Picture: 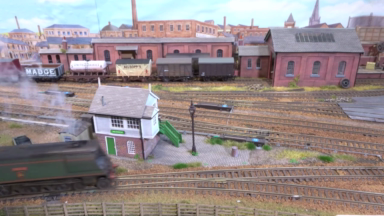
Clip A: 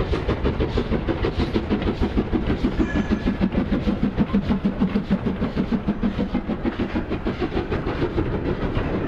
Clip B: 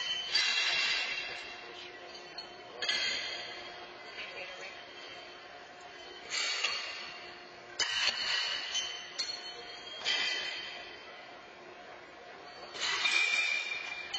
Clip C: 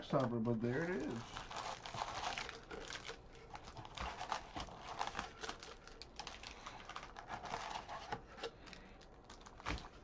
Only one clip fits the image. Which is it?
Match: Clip A